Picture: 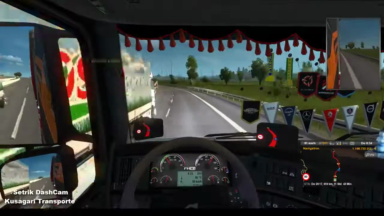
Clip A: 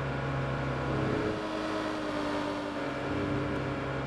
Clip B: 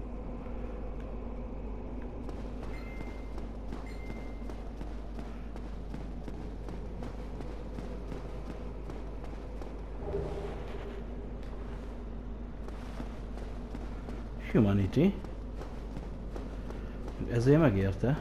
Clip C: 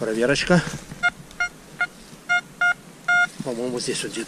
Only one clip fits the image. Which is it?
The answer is A